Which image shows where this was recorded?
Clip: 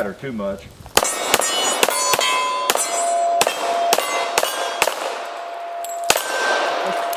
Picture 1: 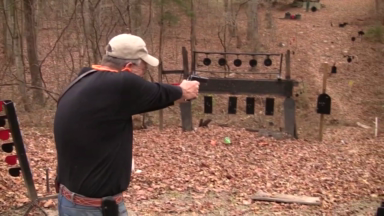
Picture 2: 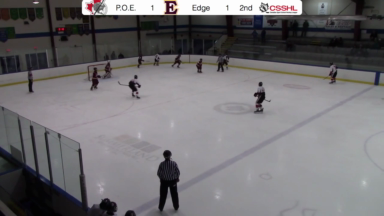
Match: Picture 1